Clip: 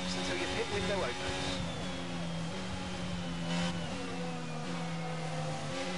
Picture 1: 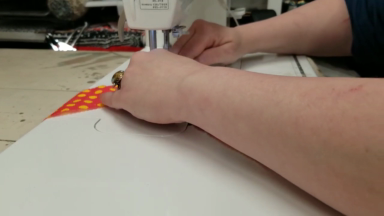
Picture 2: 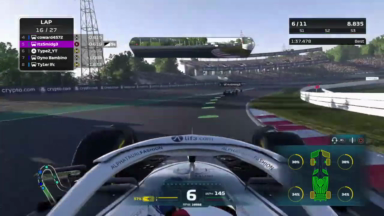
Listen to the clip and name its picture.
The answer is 2